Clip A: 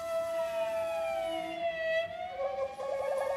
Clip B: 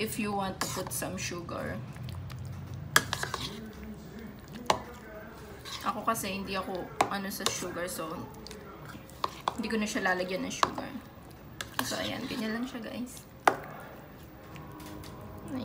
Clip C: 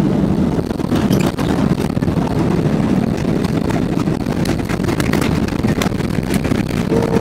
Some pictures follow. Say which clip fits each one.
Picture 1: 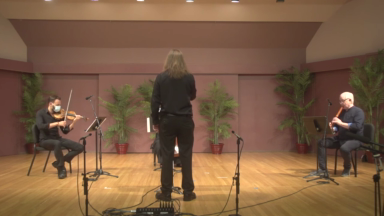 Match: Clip A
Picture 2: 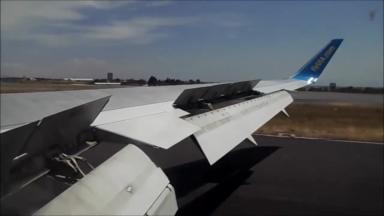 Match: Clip C